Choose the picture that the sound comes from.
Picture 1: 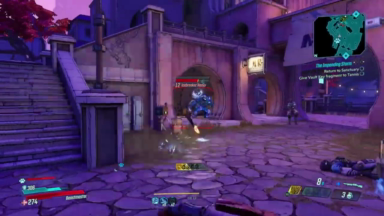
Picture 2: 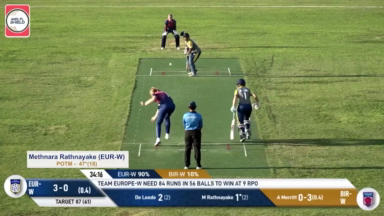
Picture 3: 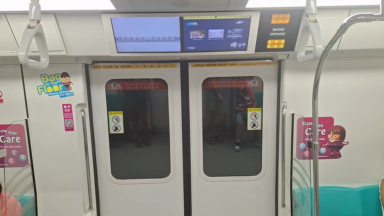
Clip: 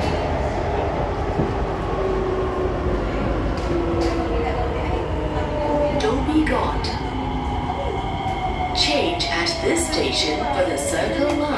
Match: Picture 3